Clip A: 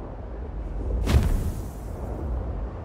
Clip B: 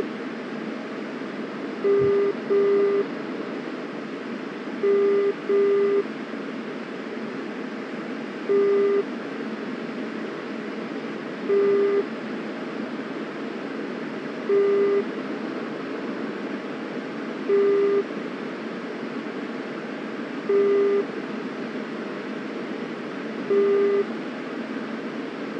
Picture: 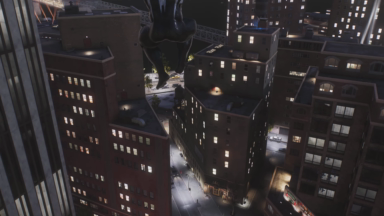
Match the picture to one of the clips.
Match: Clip A